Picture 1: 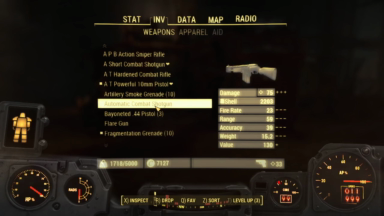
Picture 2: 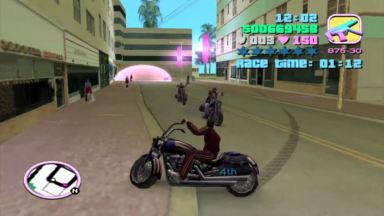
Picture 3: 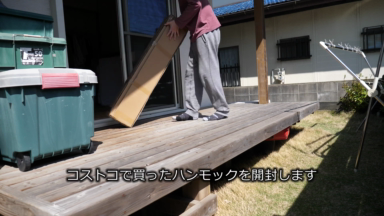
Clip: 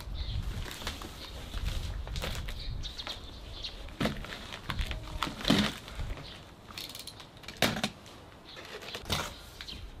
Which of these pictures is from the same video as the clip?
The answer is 3